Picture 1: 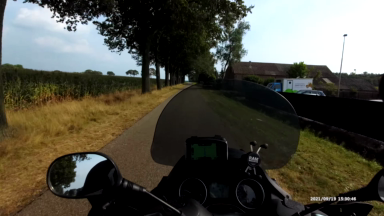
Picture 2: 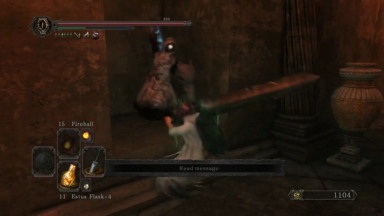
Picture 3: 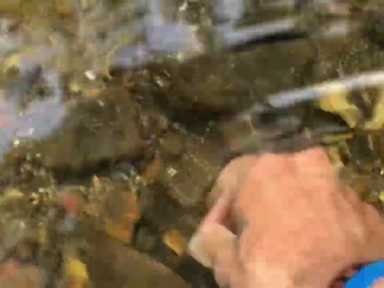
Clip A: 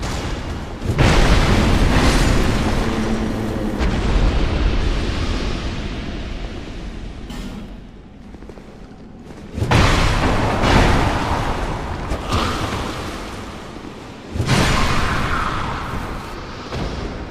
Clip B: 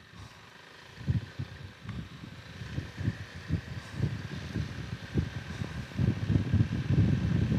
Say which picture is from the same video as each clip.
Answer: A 2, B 1